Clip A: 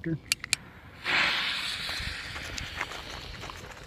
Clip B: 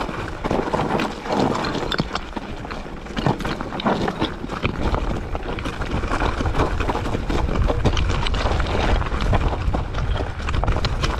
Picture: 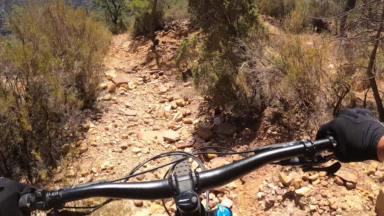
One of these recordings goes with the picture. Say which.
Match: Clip B